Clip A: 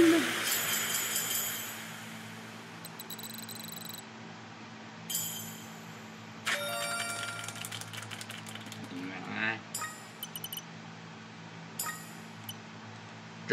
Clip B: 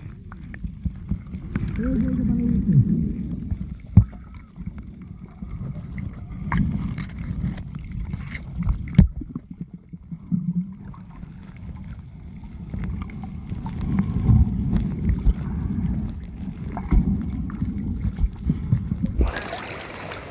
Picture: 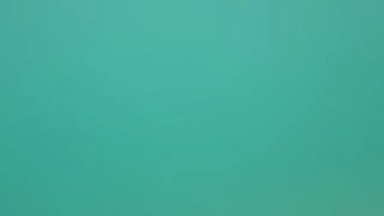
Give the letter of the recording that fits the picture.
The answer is B